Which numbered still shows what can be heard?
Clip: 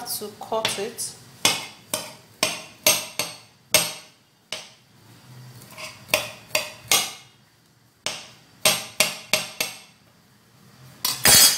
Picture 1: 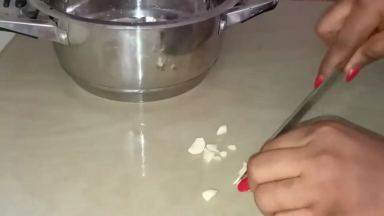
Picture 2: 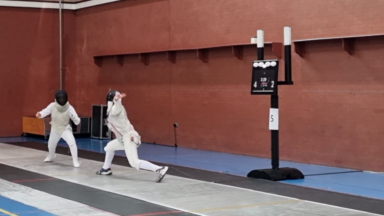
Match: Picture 1